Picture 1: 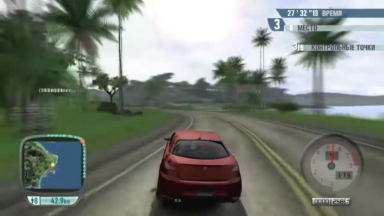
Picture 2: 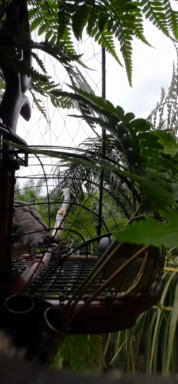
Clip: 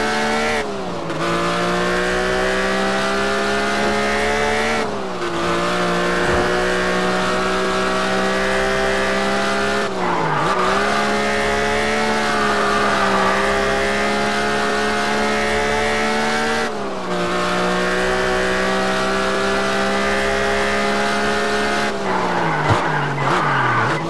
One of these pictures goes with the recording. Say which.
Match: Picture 1